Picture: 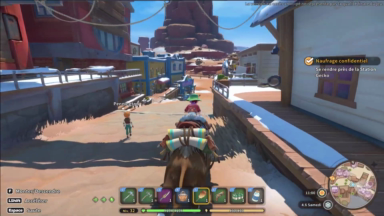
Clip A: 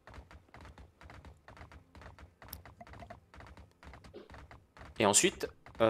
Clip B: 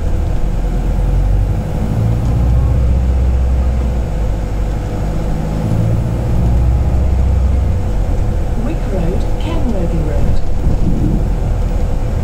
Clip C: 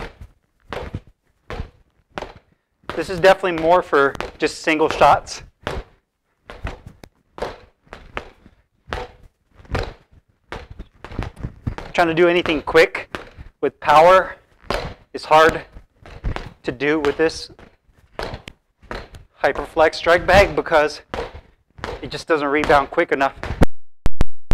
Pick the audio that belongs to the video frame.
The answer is A